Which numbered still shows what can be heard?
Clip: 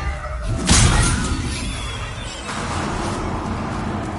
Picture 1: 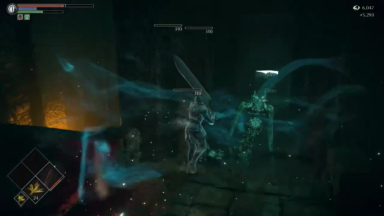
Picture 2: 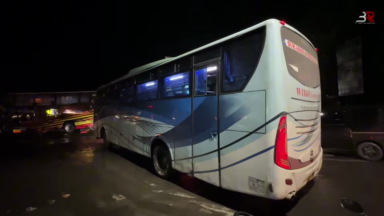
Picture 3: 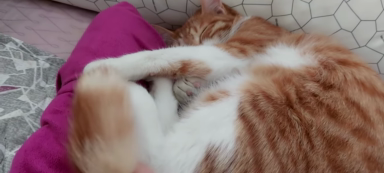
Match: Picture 1